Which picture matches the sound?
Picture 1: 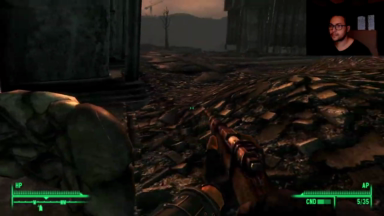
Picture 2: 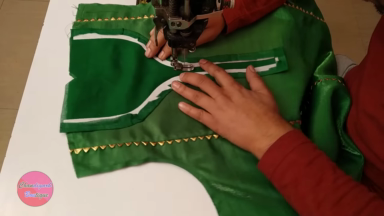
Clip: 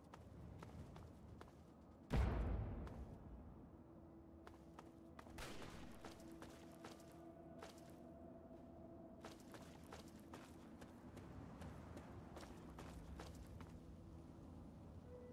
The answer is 1